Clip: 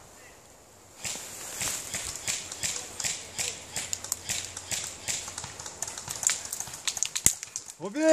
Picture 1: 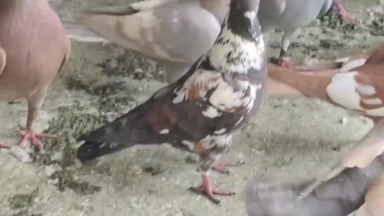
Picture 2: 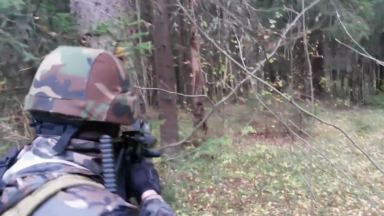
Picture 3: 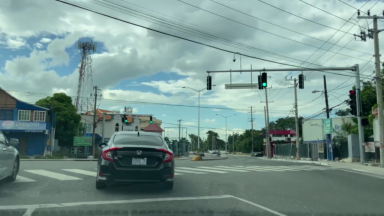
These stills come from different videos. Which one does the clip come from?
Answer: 2